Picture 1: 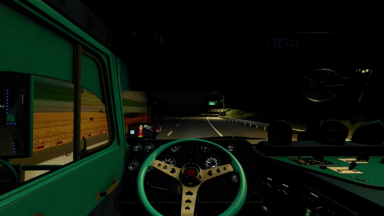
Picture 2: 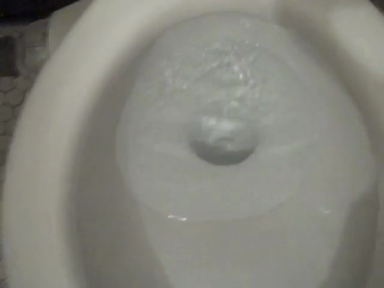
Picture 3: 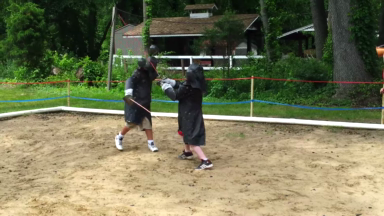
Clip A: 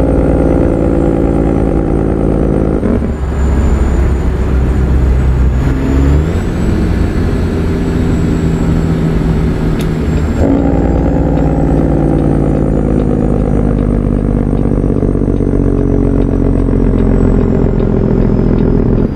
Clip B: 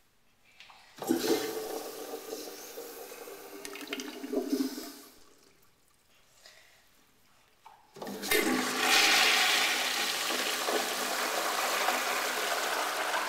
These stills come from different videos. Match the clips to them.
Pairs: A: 1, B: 2